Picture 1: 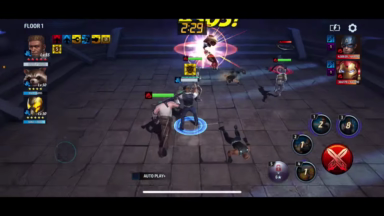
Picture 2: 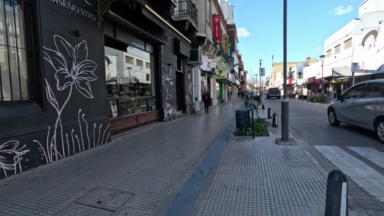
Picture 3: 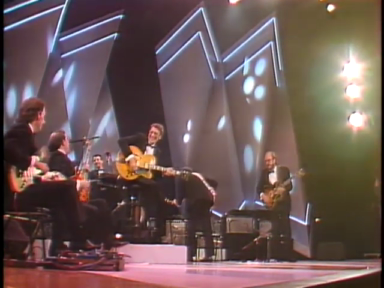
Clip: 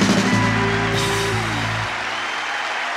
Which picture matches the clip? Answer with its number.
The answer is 3